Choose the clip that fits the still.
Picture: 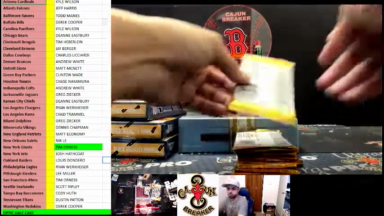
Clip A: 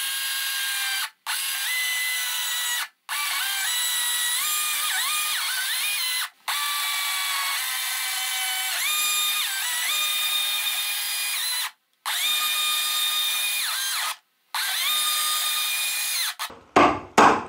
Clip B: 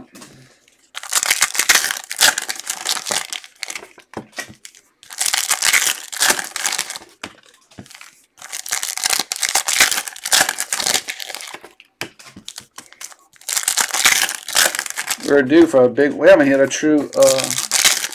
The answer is B